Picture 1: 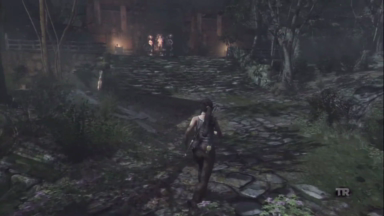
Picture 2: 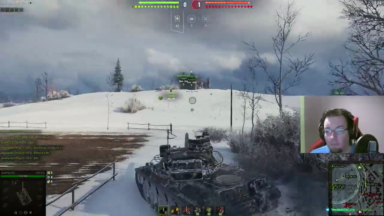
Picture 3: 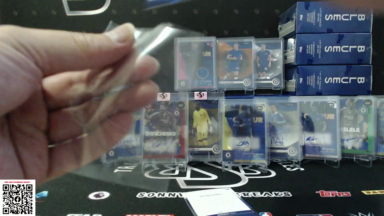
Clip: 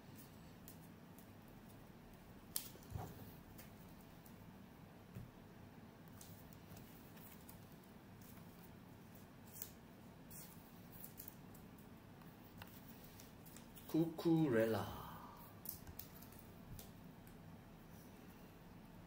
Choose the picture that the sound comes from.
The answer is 3